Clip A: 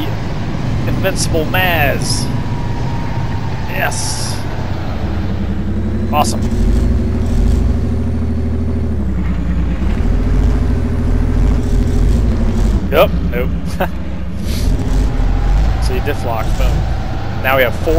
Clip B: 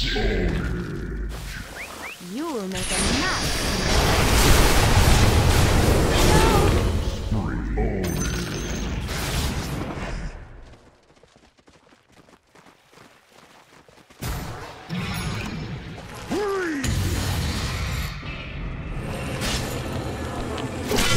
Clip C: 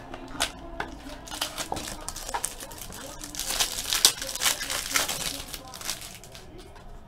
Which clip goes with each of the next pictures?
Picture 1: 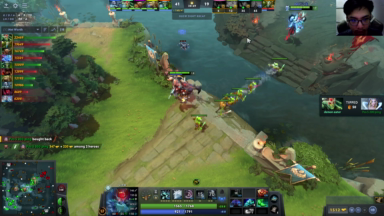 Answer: B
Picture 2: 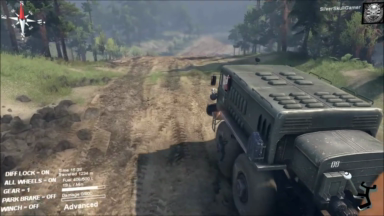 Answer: A